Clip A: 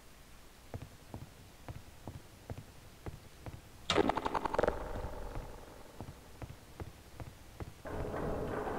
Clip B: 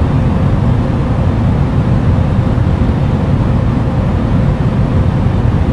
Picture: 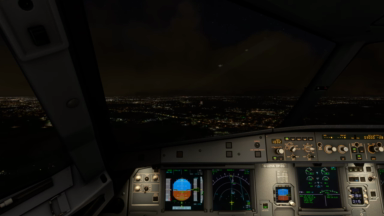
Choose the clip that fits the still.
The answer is B